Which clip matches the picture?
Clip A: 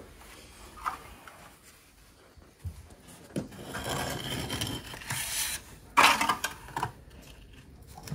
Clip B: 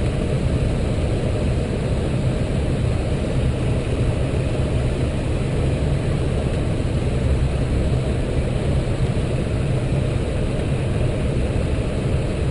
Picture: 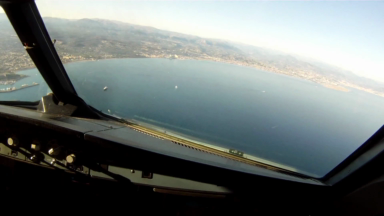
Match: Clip B